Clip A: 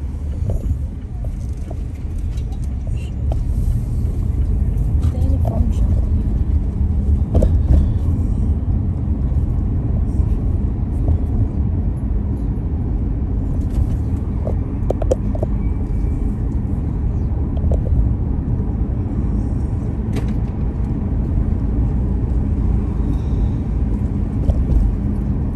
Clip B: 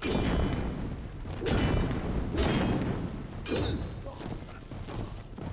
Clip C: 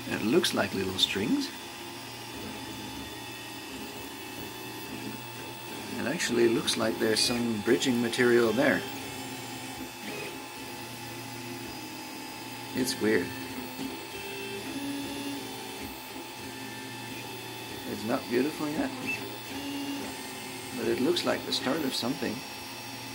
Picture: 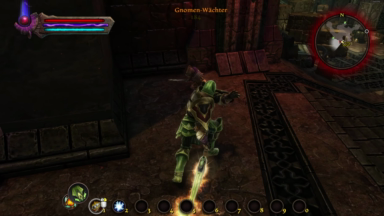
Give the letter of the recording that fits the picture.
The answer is B